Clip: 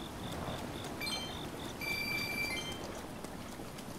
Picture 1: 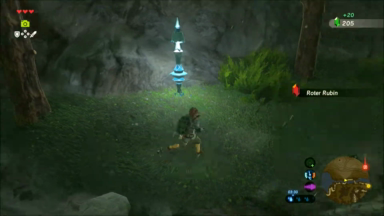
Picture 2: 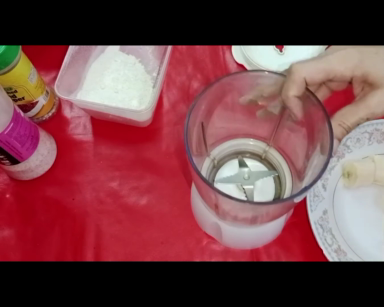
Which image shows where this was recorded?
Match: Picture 1